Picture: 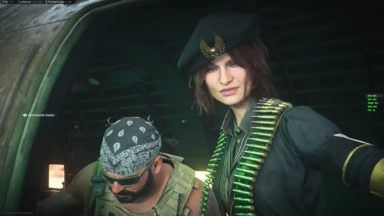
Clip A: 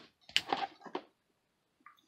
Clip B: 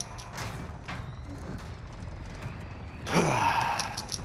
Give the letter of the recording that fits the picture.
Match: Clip B